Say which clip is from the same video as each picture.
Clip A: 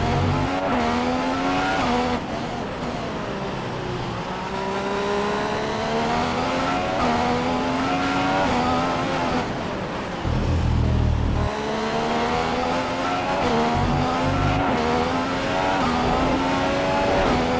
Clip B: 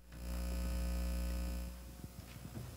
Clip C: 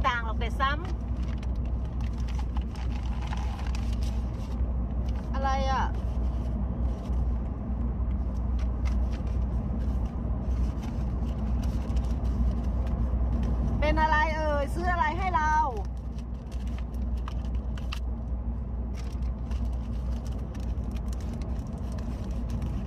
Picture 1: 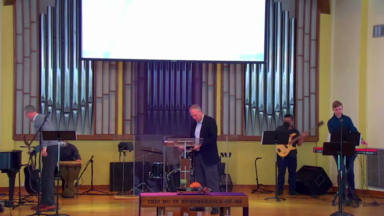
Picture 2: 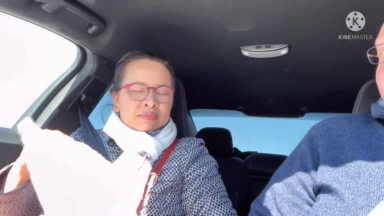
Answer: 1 B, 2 C